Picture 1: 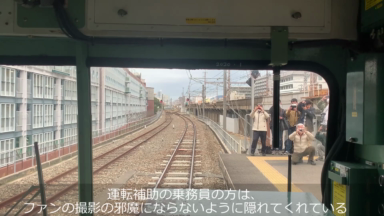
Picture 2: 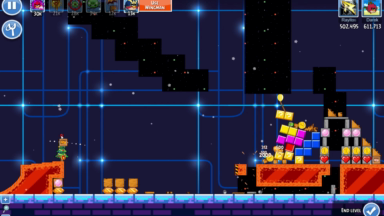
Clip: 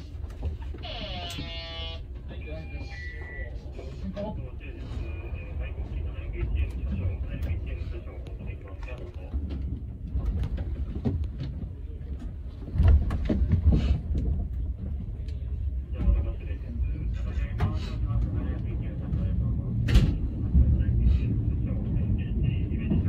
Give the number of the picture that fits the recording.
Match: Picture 1